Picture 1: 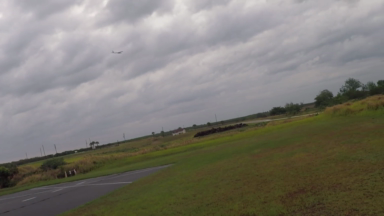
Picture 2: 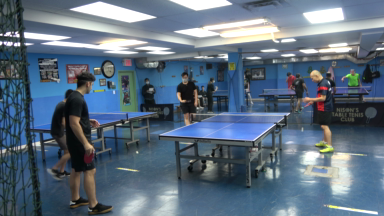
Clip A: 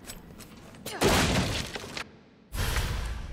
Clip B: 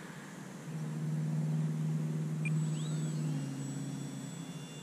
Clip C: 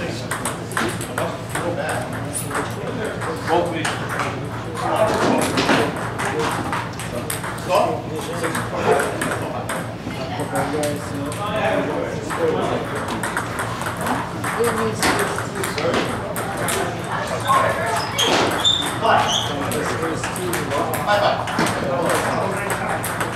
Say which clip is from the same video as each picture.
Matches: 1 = B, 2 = C